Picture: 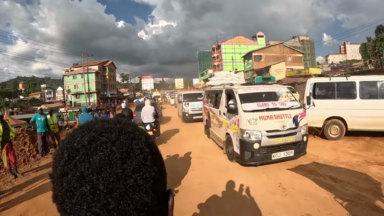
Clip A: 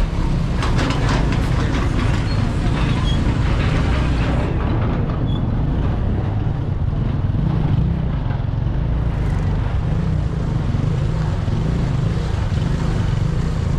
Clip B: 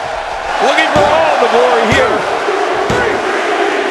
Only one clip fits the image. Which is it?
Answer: A